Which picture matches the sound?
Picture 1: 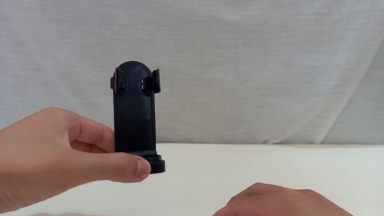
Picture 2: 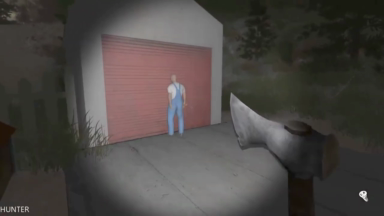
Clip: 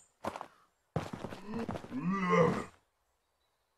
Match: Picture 2